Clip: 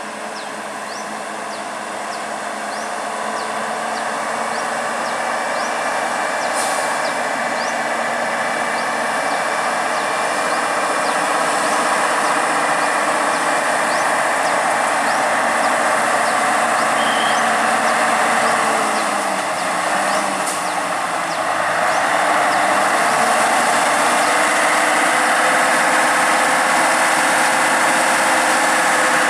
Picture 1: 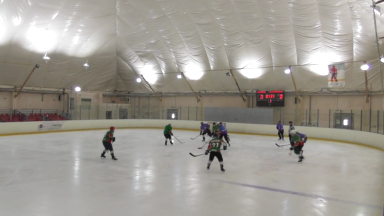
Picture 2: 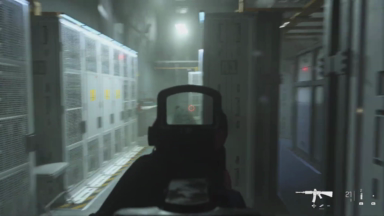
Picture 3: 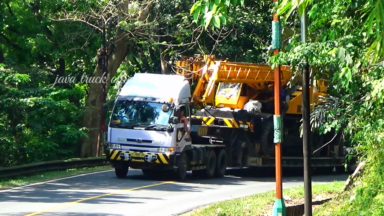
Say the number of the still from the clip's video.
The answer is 3